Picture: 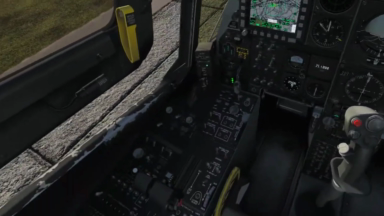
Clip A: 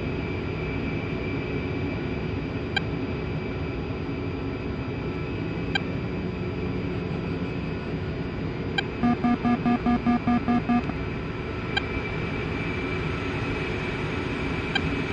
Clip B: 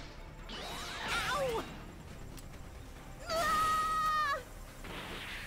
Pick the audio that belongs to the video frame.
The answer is A